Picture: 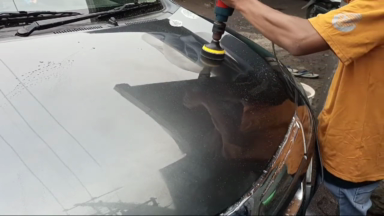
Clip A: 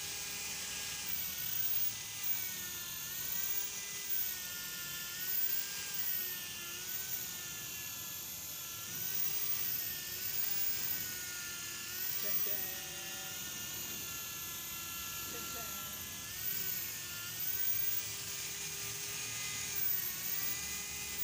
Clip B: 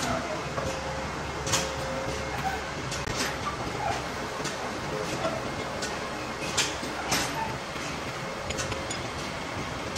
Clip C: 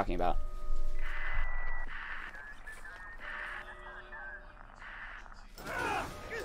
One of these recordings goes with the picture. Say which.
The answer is A